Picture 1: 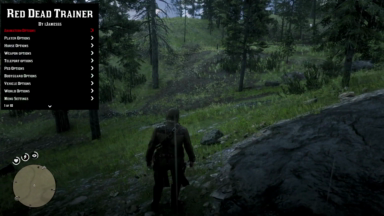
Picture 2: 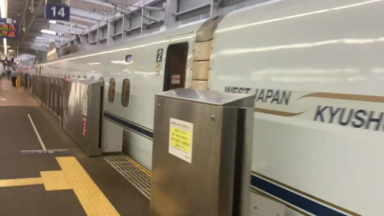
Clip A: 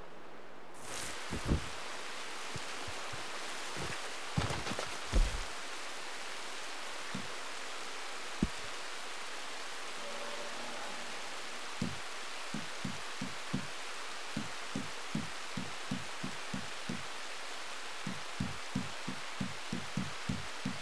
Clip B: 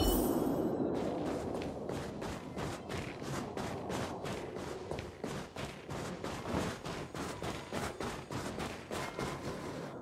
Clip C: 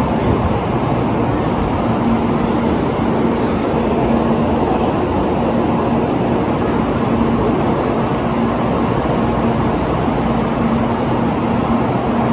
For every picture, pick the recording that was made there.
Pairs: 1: A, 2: C